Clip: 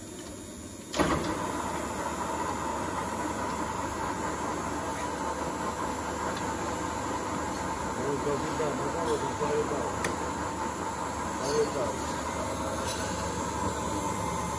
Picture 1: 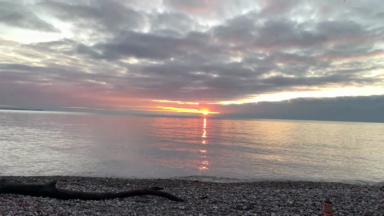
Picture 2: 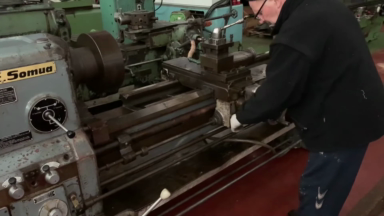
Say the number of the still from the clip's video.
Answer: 2